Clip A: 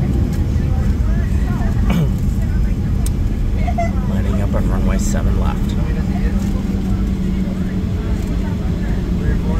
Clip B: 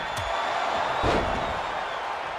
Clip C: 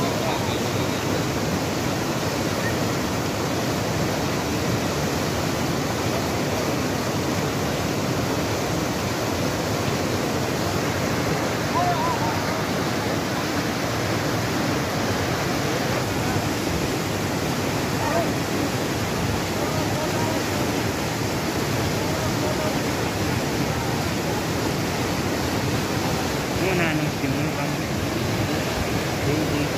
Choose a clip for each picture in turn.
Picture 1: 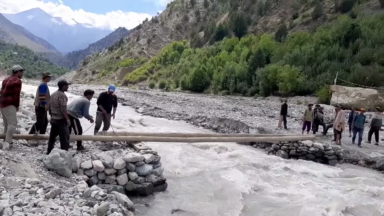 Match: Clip C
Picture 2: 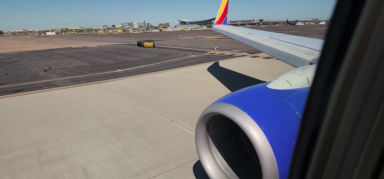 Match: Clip A